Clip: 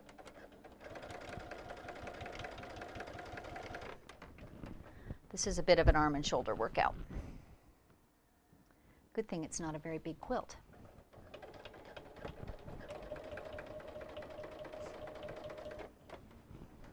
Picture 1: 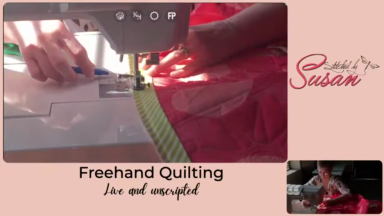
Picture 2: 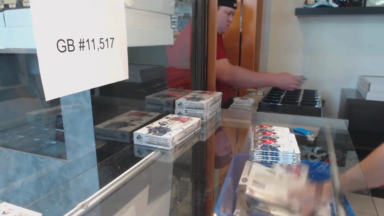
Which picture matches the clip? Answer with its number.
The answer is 1